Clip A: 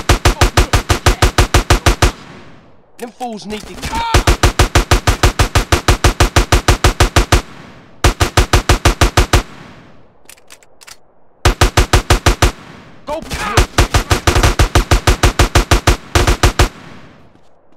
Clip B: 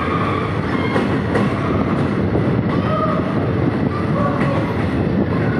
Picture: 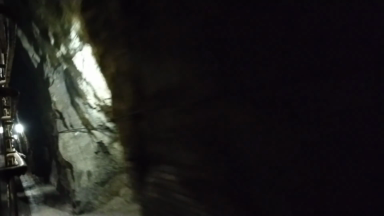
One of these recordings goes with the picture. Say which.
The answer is B